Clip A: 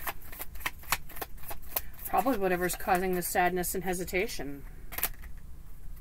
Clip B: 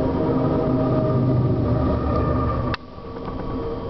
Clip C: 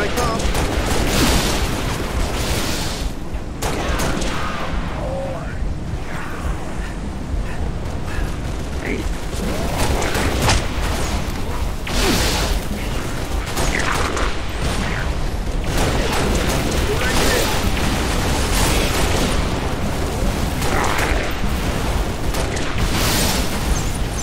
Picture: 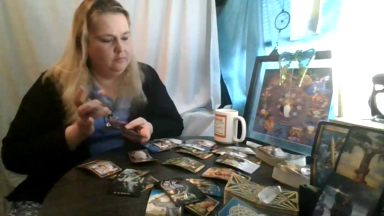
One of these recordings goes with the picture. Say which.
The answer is A